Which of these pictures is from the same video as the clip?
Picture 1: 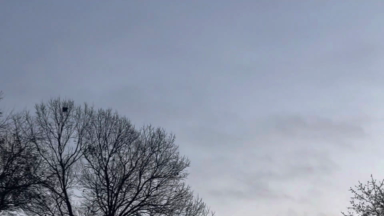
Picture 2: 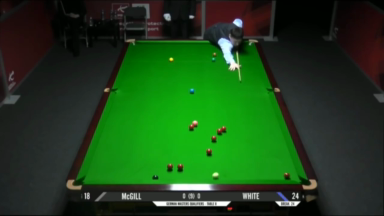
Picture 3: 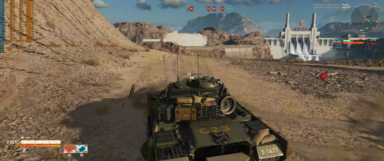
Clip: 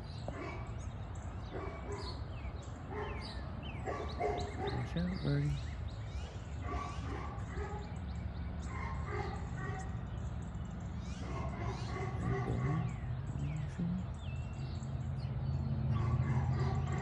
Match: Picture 1